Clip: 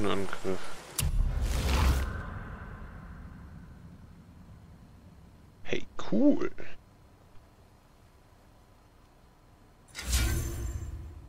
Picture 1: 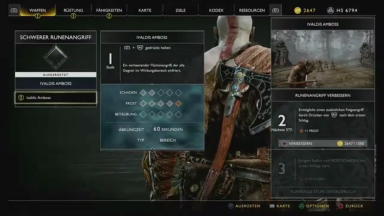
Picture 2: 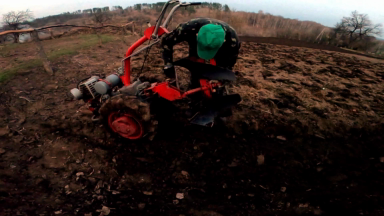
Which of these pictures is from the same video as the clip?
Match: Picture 1